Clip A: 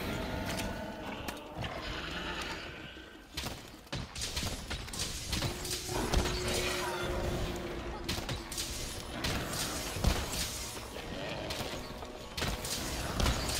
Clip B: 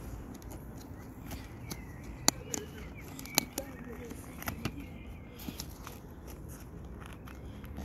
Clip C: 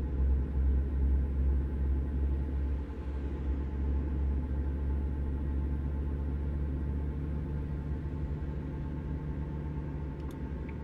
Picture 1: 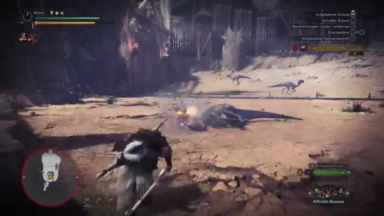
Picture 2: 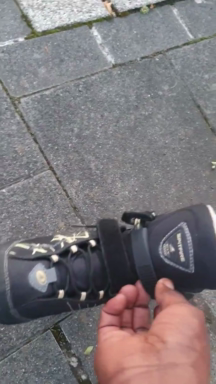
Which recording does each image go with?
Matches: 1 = A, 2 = B